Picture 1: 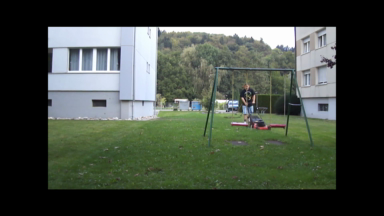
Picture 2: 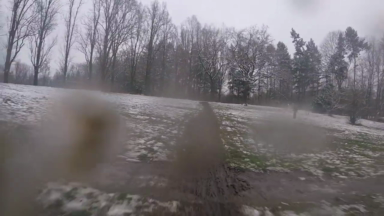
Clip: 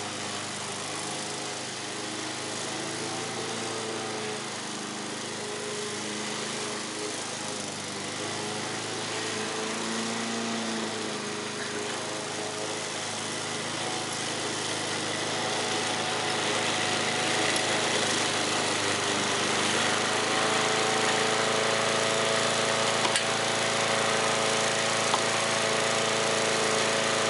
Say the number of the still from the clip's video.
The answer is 1